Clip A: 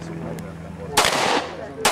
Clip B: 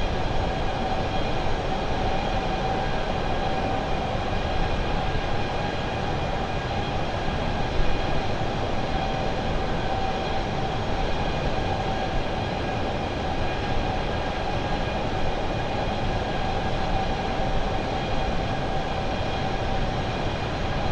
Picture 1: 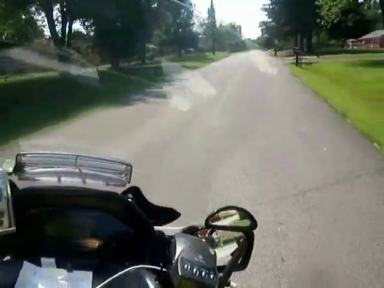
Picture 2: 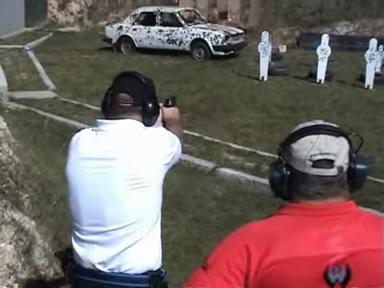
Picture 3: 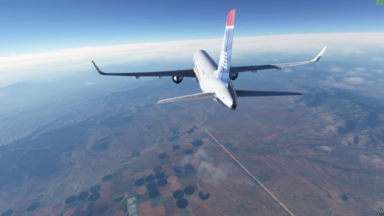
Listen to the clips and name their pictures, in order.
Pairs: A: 2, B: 3